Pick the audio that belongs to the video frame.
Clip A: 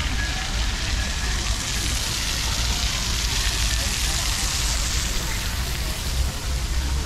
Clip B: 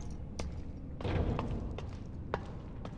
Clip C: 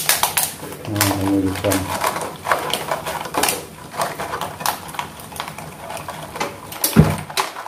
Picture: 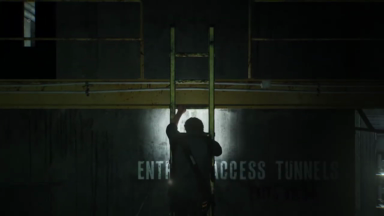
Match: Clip B